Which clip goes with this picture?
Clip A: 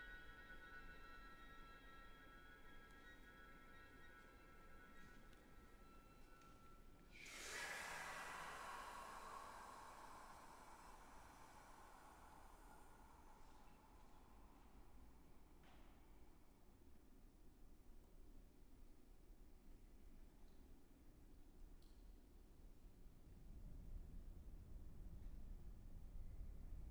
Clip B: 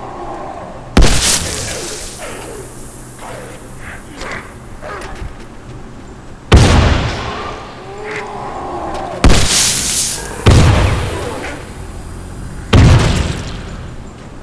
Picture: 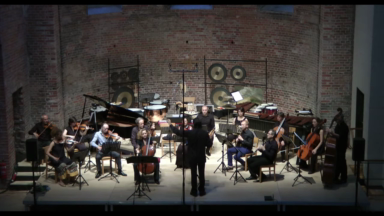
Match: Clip A